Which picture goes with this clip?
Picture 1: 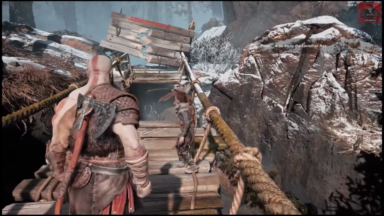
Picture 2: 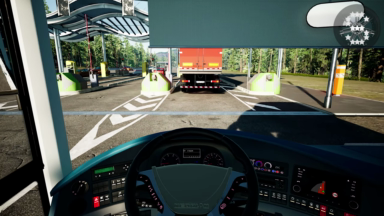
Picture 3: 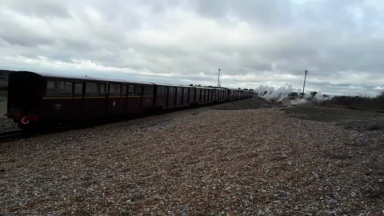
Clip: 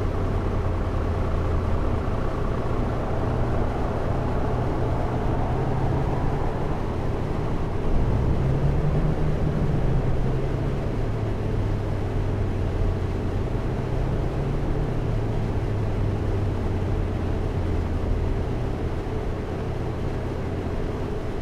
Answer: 2